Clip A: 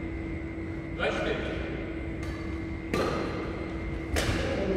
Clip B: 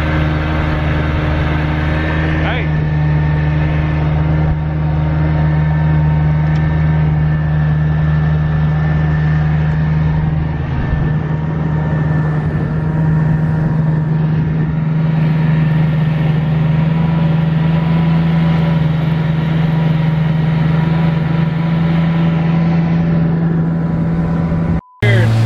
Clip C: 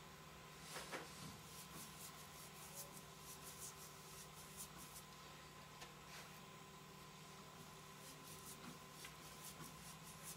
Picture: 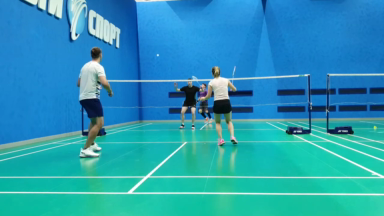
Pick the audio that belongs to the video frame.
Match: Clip A